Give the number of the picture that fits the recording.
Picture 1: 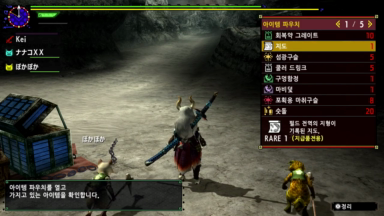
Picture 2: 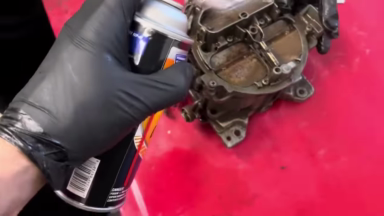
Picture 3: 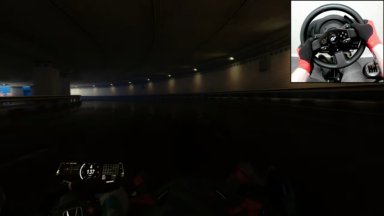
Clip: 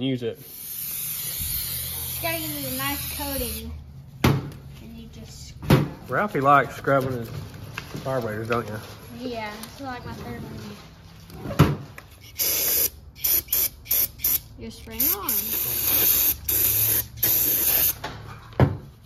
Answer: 2